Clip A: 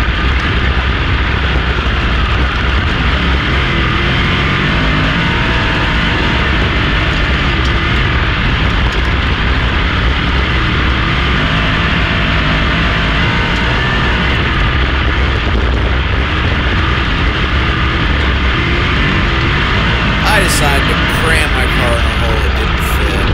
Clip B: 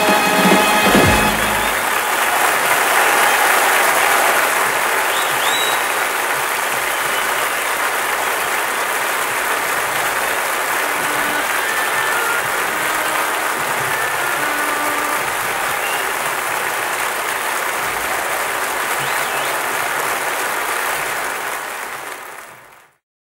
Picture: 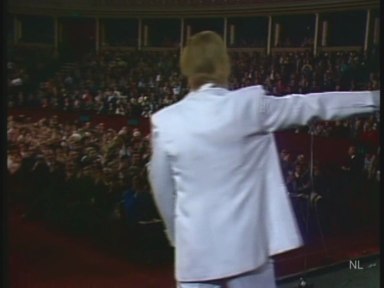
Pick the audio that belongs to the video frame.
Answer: B